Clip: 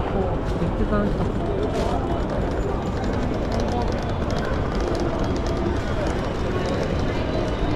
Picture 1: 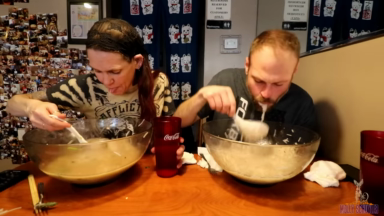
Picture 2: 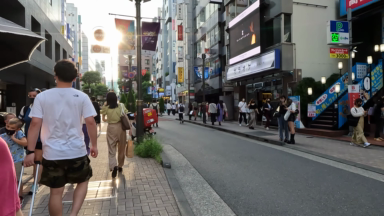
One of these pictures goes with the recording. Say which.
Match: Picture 2